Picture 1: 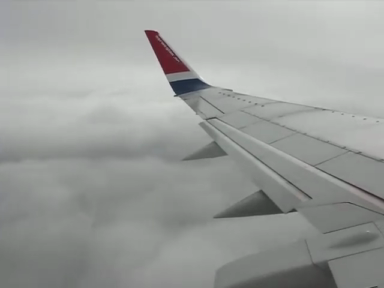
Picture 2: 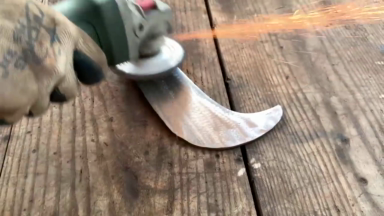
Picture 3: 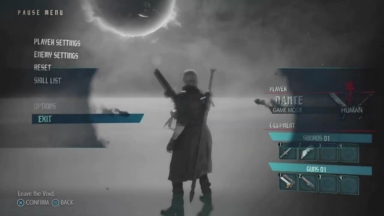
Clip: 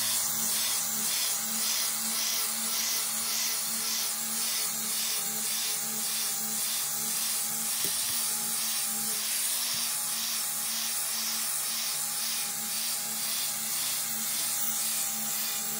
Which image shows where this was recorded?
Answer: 2